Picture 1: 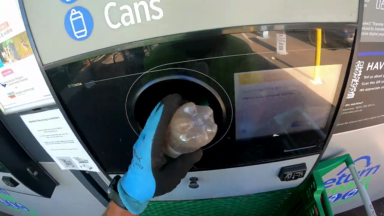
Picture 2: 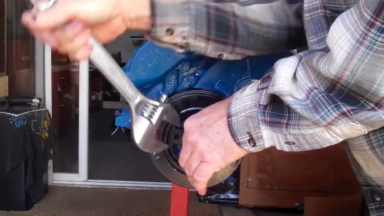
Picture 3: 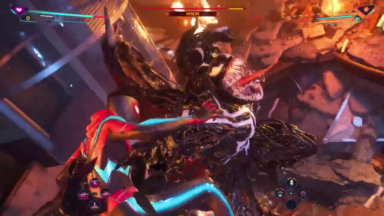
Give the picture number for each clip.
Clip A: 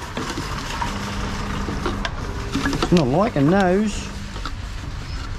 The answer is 1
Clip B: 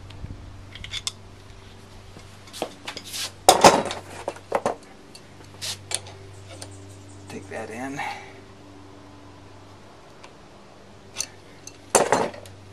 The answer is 2